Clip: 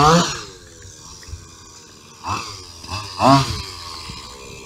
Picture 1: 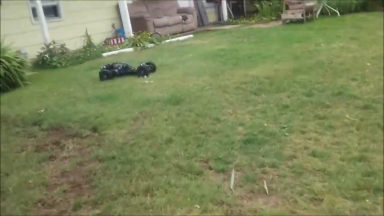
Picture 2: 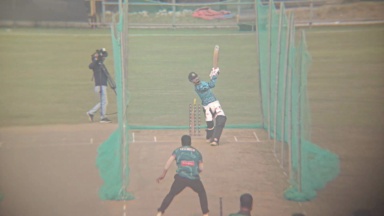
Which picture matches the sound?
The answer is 1